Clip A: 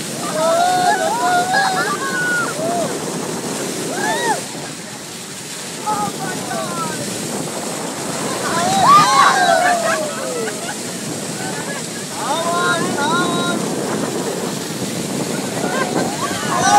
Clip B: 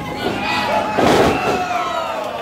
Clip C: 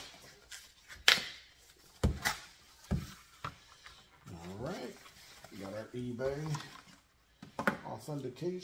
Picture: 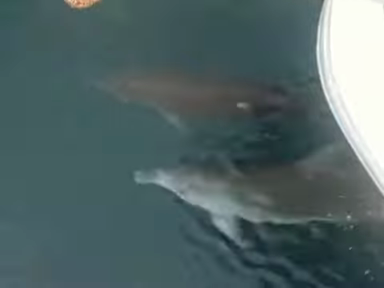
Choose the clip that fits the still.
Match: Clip A